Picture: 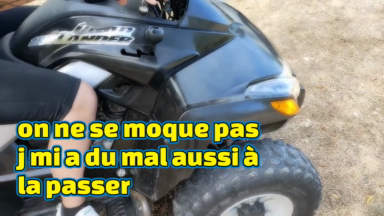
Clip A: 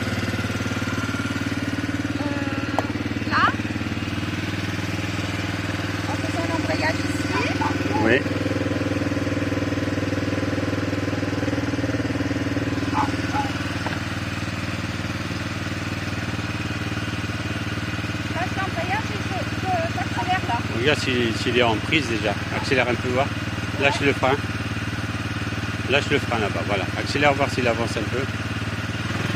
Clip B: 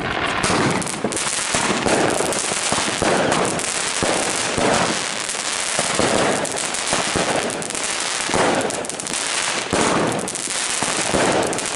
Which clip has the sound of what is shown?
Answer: A